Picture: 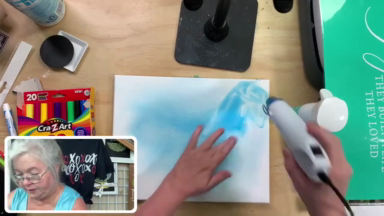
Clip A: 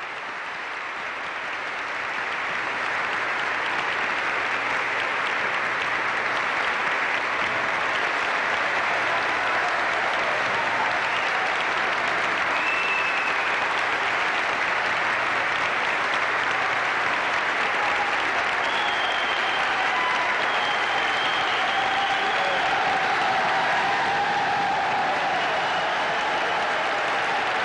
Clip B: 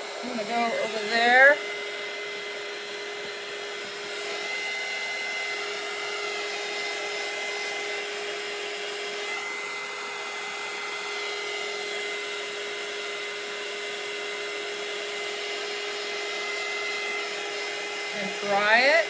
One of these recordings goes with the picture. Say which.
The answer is B